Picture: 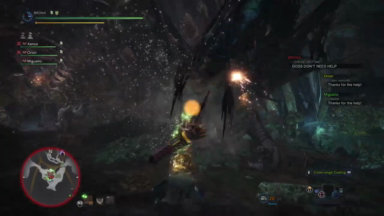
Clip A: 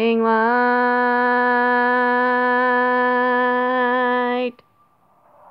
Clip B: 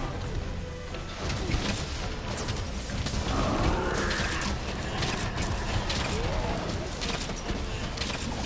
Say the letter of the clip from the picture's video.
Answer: B